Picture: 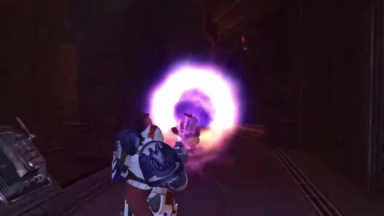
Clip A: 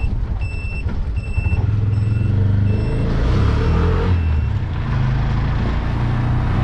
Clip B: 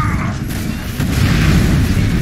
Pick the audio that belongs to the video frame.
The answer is B